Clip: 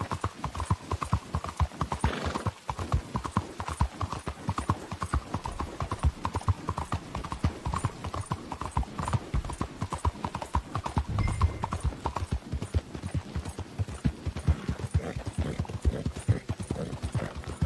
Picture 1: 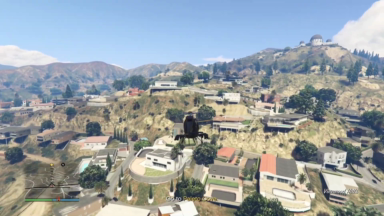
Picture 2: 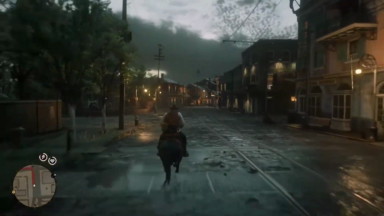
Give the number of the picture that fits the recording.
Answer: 2